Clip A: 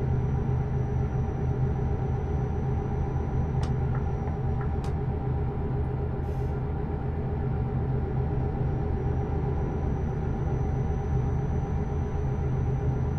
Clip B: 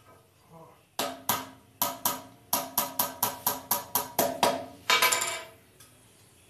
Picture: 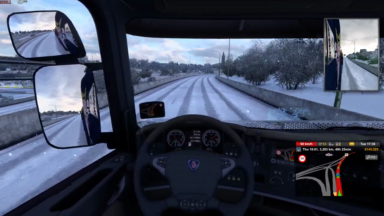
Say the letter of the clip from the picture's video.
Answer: A